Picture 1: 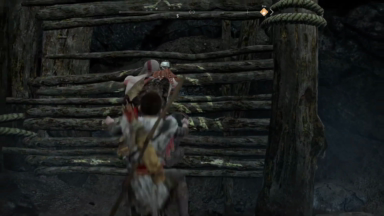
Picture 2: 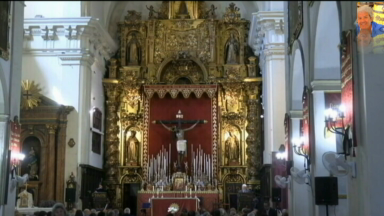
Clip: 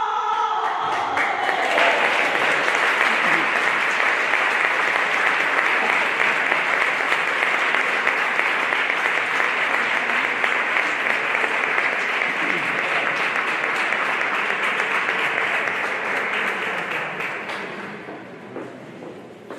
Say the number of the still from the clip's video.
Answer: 2